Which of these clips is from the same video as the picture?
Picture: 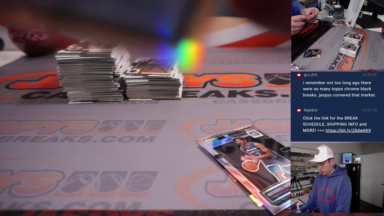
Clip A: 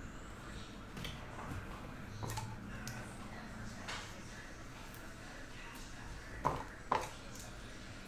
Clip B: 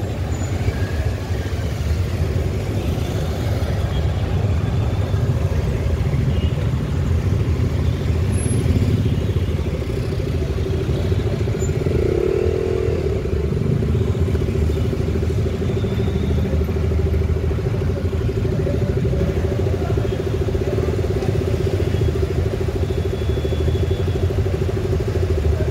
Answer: A